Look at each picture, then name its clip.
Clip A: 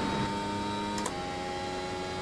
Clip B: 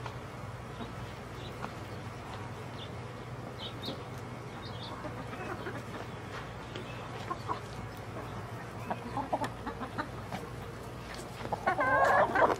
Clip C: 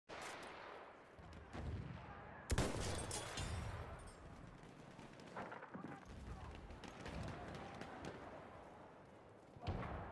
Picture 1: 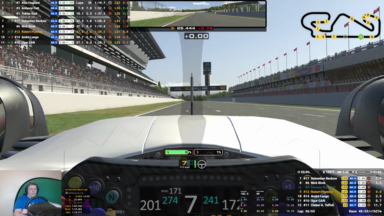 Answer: A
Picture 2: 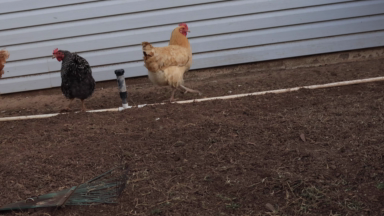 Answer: B